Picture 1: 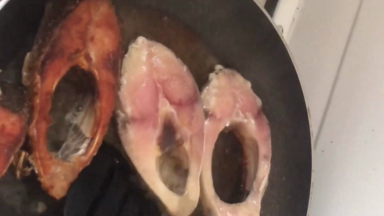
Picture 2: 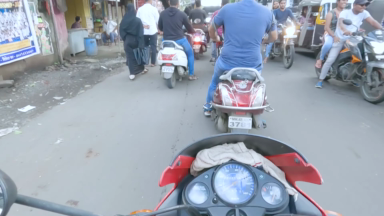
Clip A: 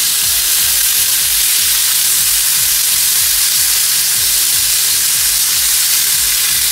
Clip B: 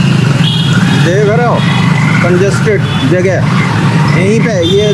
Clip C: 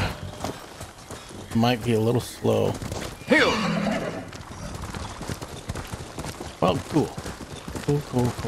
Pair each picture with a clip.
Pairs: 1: A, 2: B